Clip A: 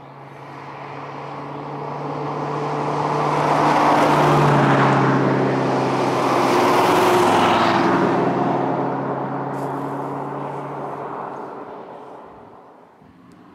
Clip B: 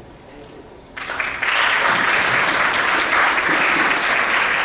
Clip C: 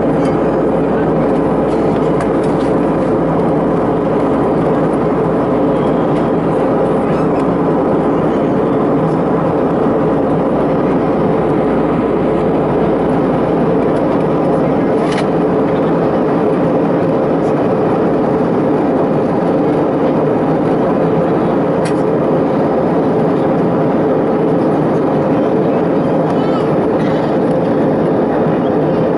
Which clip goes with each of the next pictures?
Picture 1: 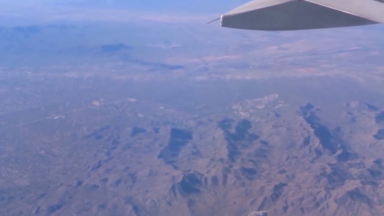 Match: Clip C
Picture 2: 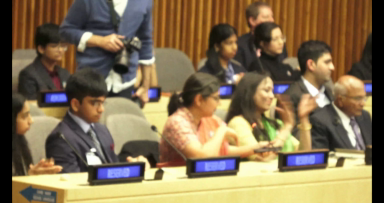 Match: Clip B